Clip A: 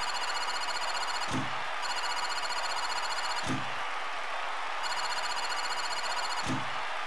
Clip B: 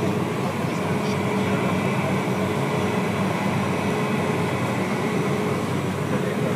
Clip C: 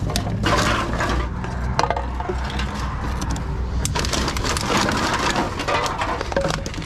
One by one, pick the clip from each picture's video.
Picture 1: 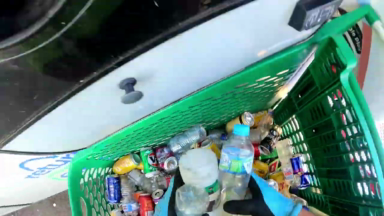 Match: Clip C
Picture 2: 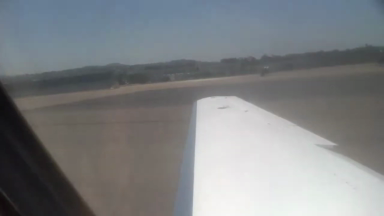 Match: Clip B